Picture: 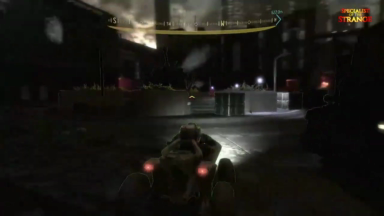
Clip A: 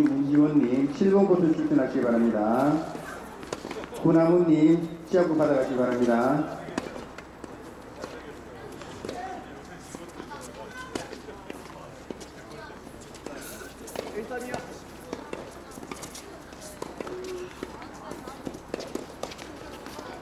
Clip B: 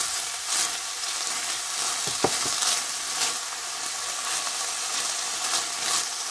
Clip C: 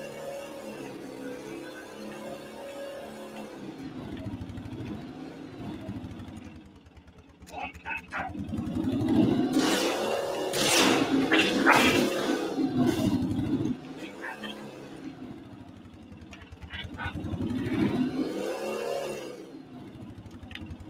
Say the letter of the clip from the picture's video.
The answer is C